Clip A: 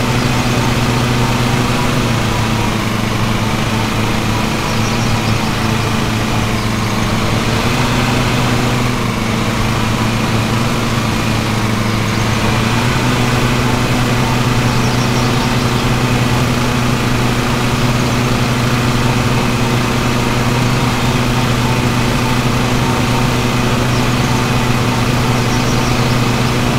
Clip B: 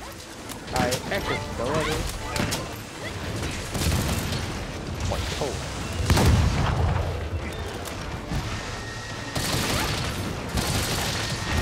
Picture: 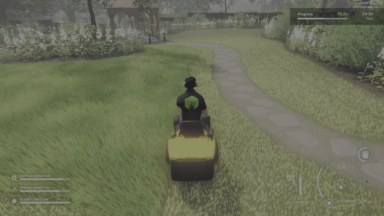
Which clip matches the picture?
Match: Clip A